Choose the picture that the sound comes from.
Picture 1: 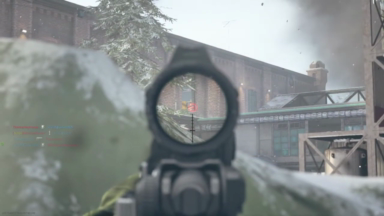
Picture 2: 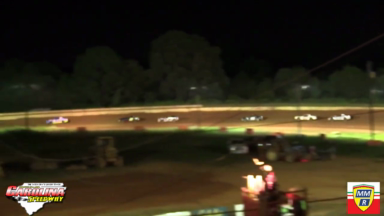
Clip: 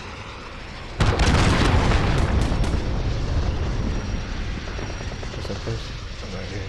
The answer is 1